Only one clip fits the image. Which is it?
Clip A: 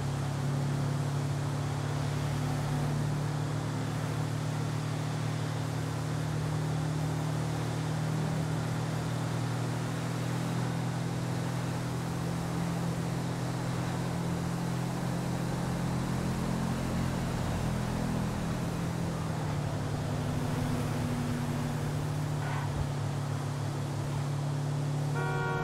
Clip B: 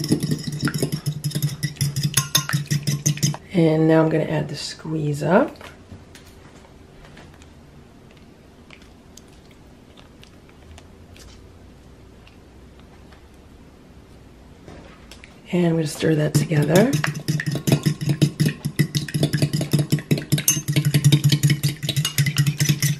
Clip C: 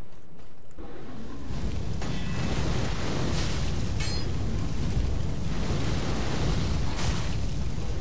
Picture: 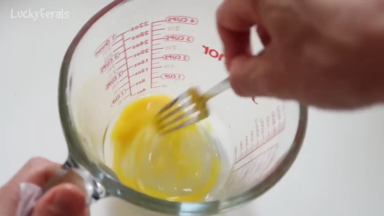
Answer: B